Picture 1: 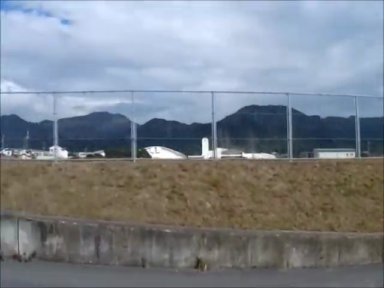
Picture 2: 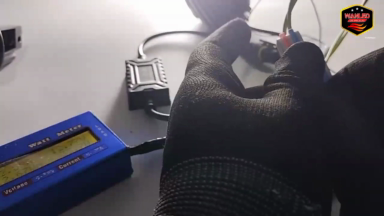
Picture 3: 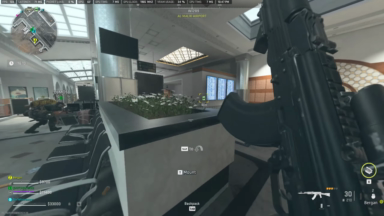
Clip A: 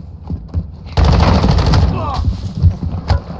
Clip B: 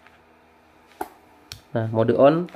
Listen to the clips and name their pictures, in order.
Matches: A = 3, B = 2